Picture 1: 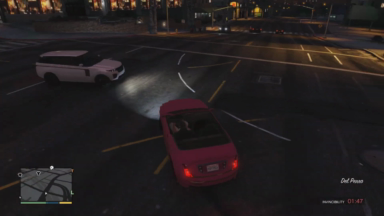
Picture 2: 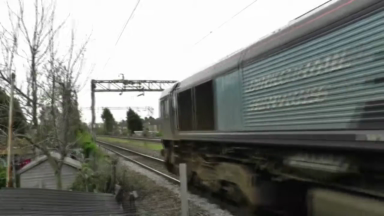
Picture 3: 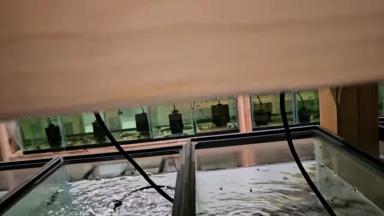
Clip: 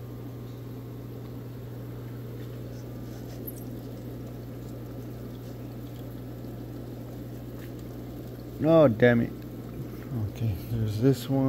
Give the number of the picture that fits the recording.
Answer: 3